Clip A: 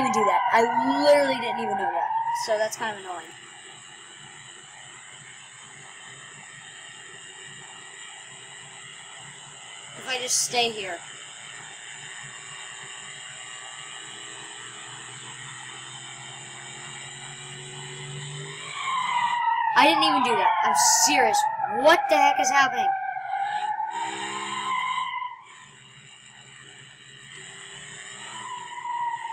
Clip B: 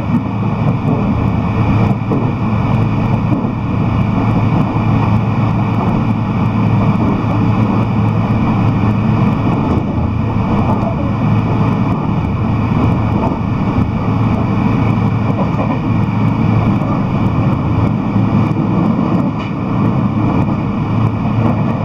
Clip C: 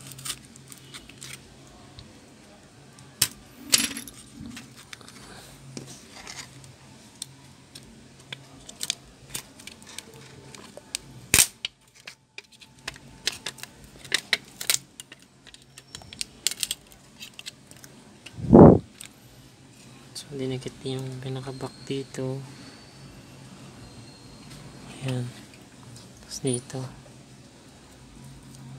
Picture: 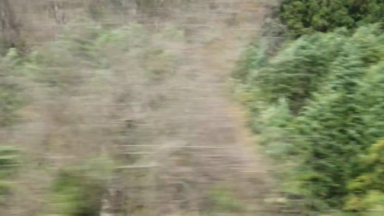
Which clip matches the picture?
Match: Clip B